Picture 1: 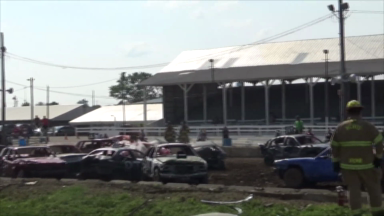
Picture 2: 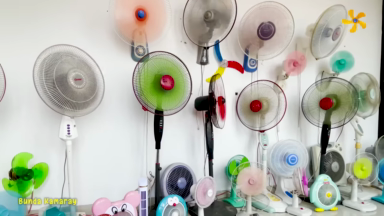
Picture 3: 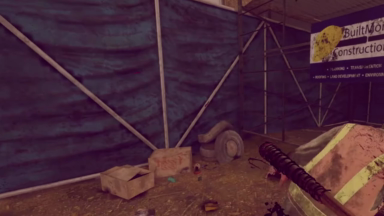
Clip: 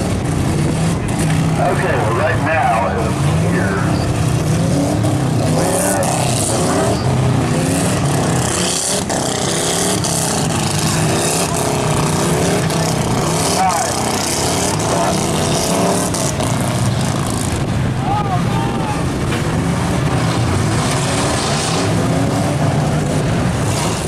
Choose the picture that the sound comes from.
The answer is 1